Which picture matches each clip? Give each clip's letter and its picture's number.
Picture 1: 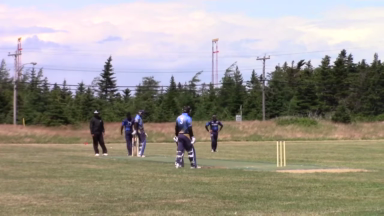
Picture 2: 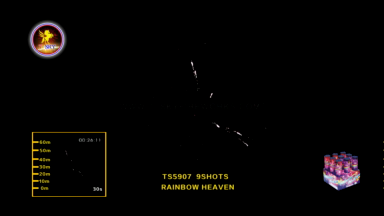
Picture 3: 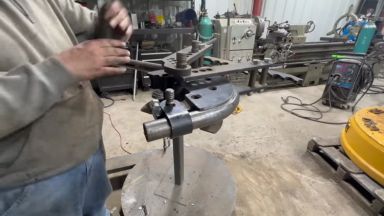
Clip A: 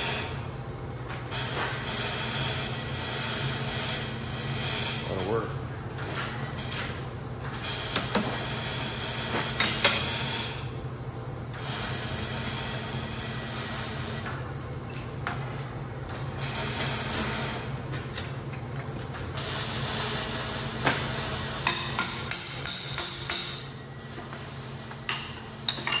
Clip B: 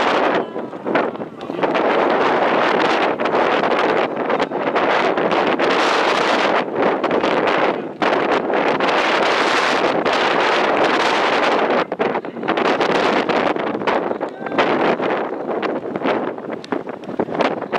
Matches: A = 3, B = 1